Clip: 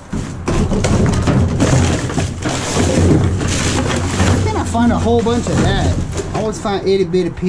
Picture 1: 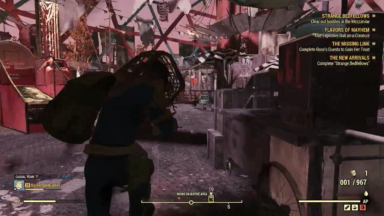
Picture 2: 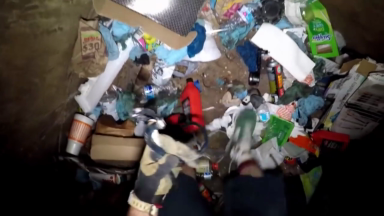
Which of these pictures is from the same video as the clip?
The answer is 2